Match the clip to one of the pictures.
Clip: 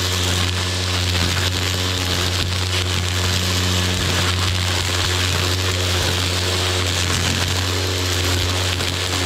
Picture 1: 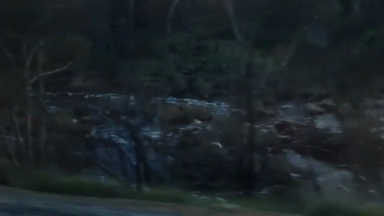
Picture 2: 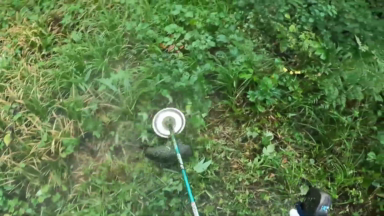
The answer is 2